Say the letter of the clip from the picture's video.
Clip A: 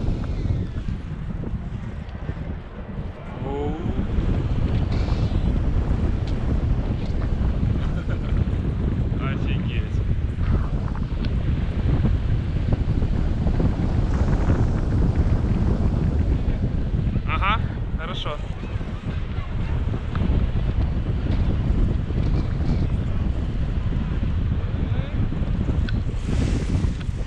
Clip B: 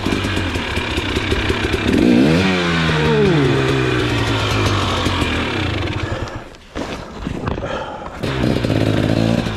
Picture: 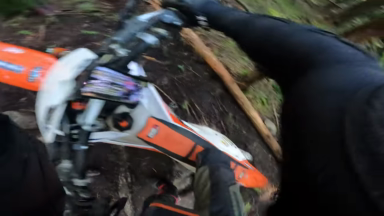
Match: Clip B